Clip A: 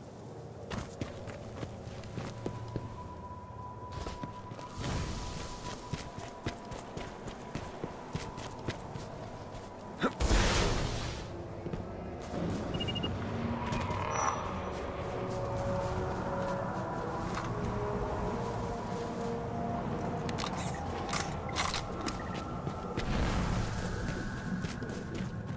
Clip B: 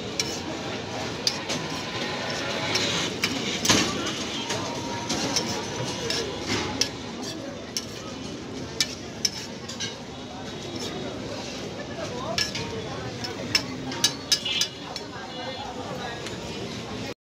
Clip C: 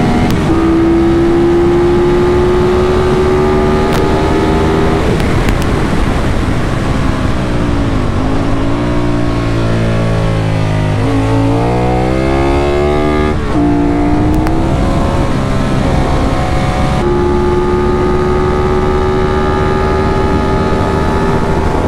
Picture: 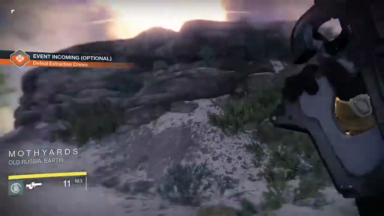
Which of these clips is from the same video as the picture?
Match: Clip A